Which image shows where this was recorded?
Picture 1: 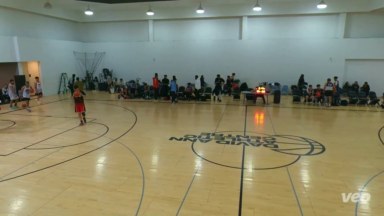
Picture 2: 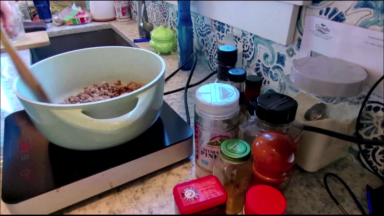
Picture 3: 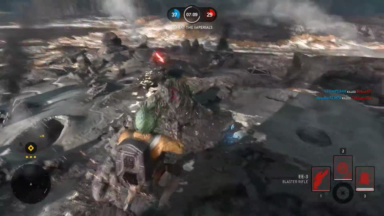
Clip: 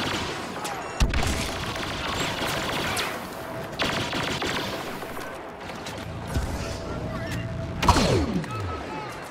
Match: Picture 3